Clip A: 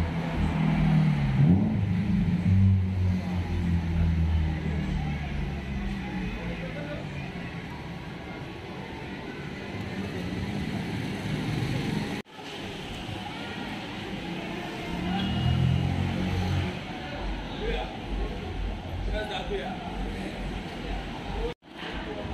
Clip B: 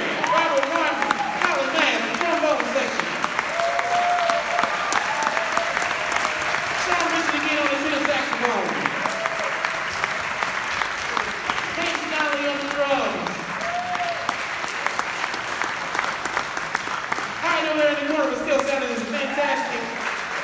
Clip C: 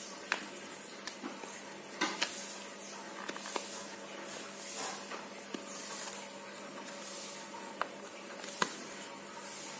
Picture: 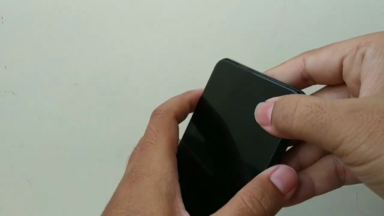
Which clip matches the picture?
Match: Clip C